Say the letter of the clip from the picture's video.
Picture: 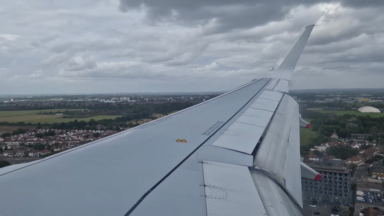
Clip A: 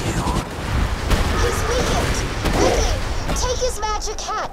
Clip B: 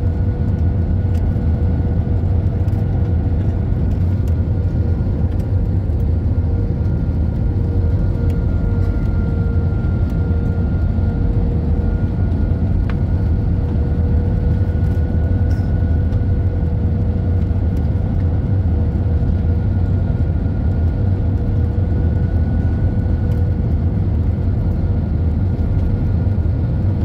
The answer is B